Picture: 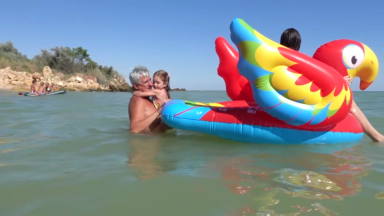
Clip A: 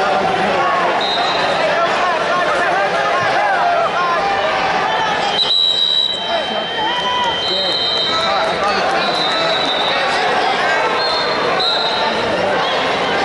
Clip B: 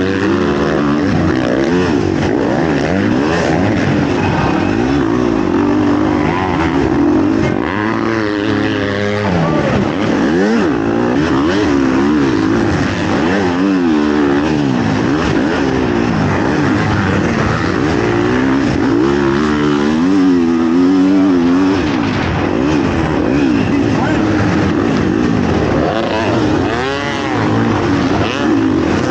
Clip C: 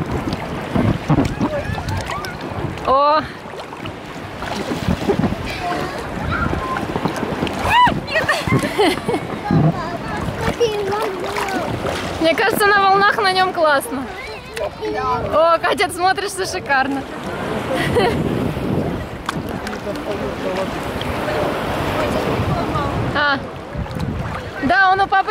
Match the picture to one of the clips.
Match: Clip C